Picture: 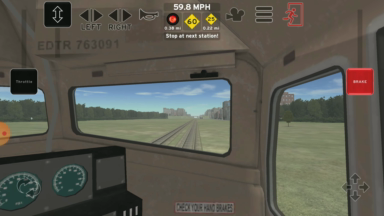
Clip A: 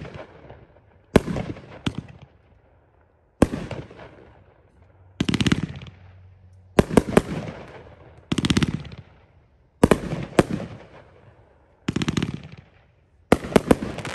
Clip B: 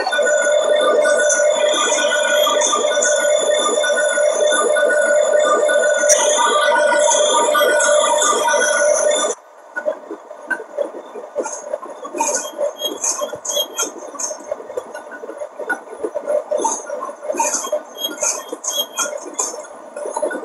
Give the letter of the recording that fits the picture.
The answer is B